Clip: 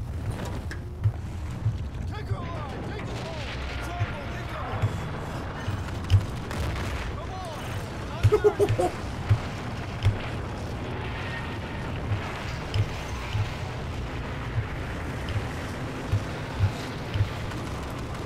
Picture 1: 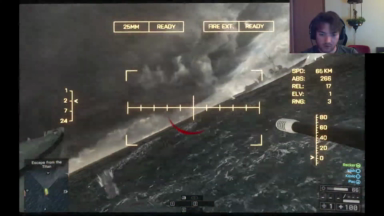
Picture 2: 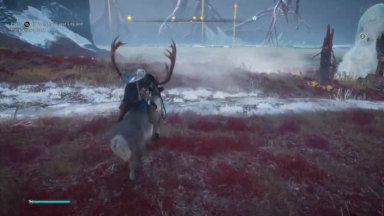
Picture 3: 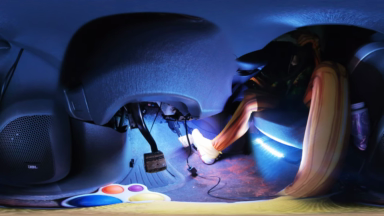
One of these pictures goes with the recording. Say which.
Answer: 1